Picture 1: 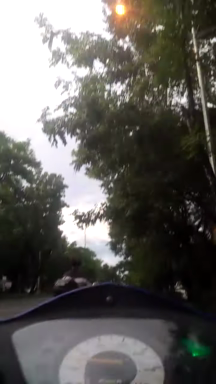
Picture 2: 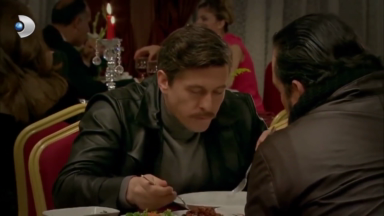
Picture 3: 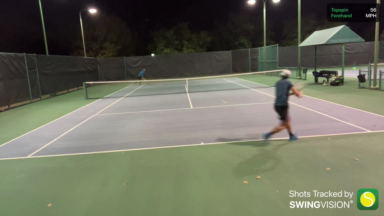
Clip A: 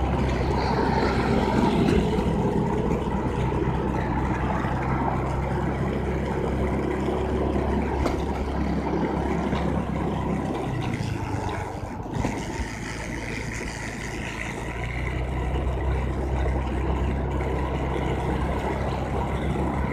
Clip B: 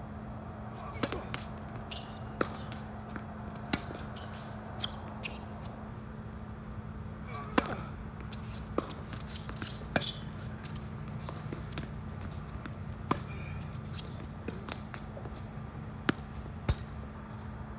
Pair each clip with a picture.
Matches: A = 1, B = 3